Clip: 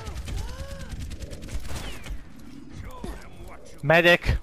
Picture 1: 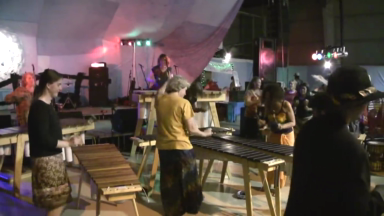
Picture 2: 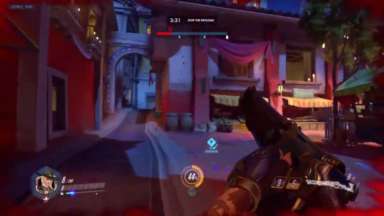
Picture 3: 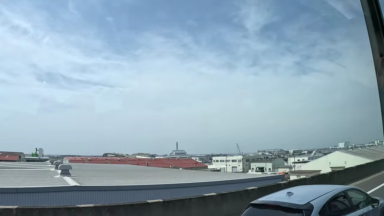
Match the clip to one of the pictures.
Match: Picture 2